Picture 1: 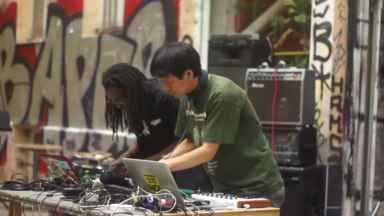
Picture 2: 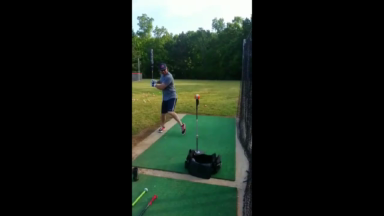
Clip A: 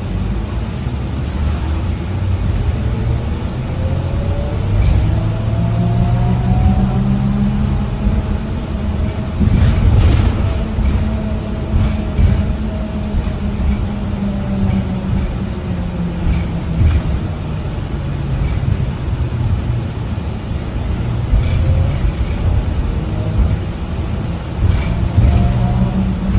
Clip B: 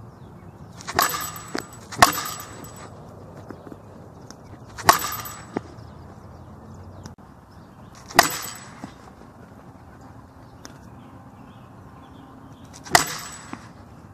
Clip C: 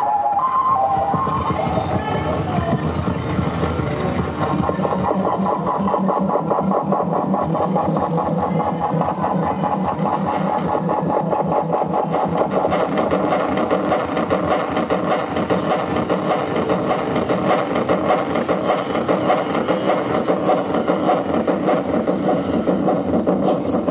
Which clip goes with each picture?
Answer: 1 C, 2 B